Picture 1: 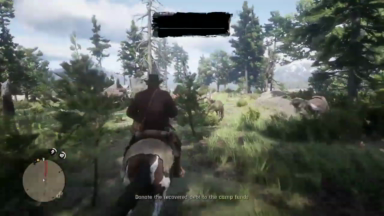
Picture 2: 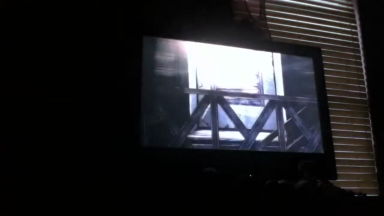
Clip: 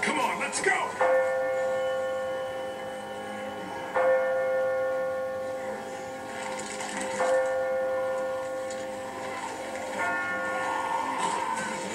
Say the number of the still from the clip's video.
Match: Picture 2